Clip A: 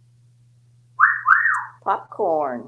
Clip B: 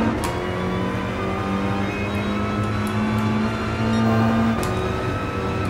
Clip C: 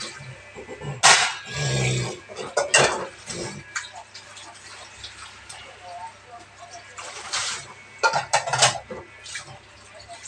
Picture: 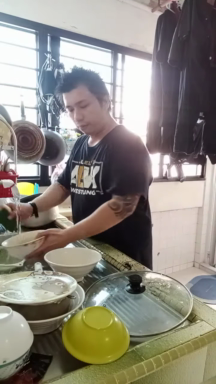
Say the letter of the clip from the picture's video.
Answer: C